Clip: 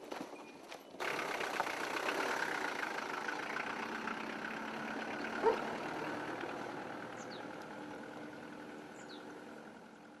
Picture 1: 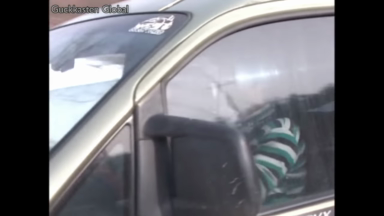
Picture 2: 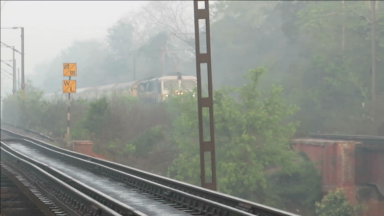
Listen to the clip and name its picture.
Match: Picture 1